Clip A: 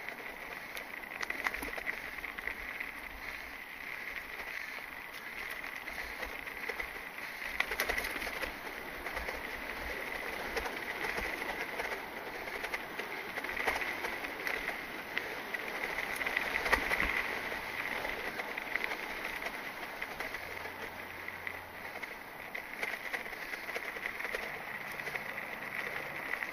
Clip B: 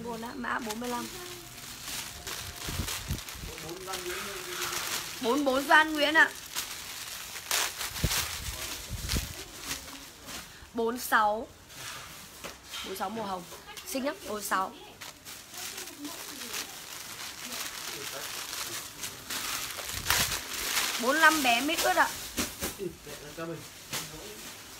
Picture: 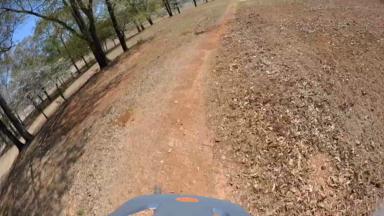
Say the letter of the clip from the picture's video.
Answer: A